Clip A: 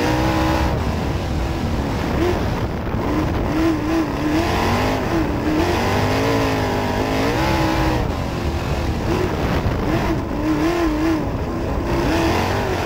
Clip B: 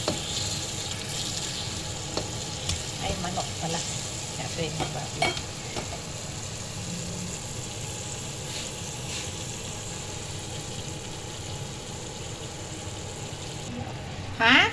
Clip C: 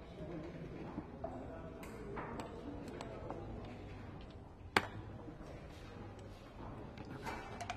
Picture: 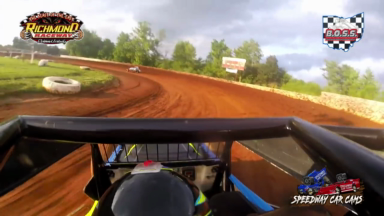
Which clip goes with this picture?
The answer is A